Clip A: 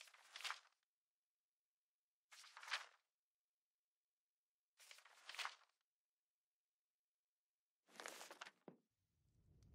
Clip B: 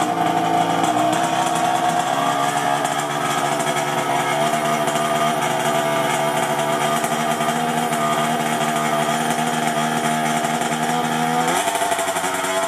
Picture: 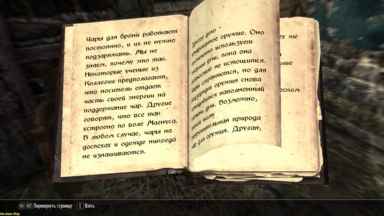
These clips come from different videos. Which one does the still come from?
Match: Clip A